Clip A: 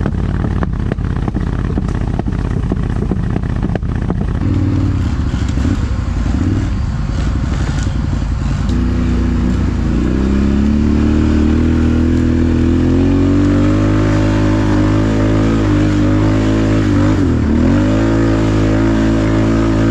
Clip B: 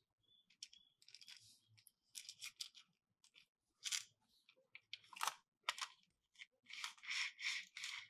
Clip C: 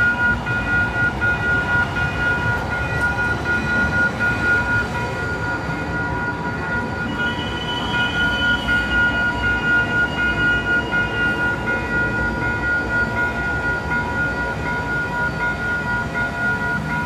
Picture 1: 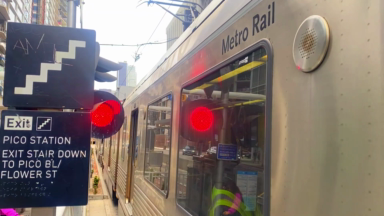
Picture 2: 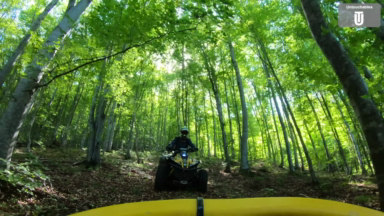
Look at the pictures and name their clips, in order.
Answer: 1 C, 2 A